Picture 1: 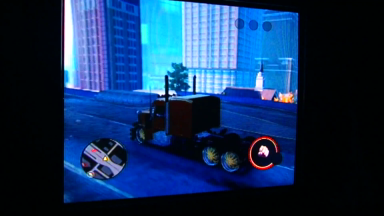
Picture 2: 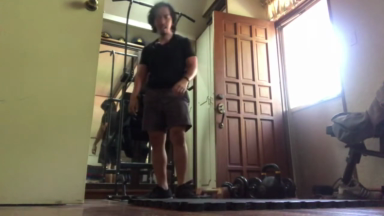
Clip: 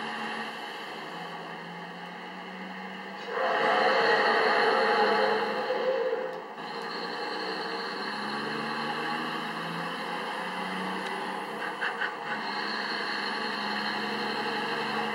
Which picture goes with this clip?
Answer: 1